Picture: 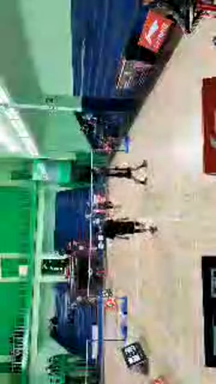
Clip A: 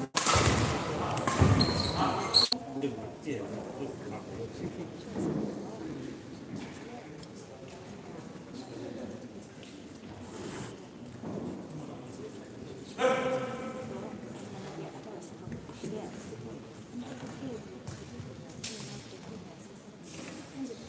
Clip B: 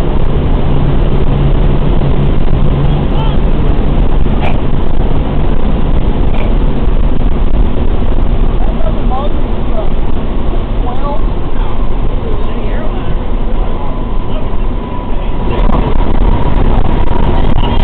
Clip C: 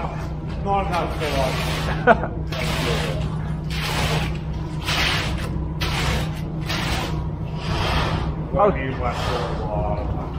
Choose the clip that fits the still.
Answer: A